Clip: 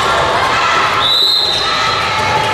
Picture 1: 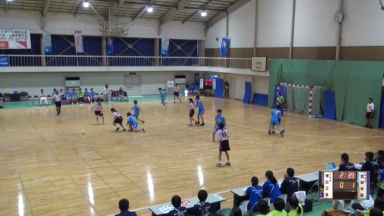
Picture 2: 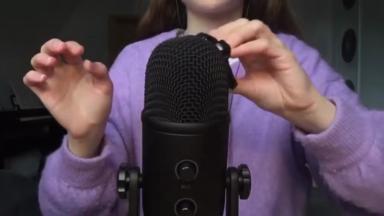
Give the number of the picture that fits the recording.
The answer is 1